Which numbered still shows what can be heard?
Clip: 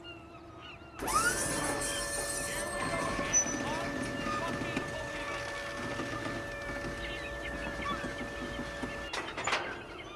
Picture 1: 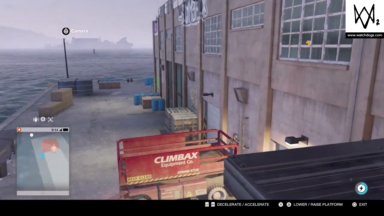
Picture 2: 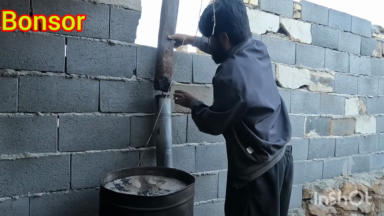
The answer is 1